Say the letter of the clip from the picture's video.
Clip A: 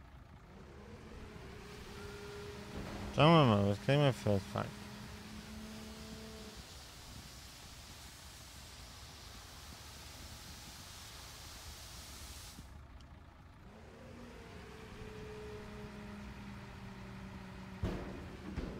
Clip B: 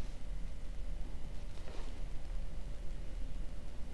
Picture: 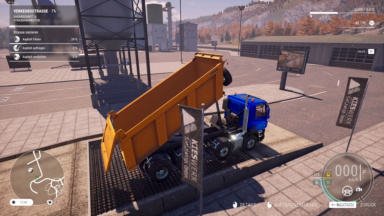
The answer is A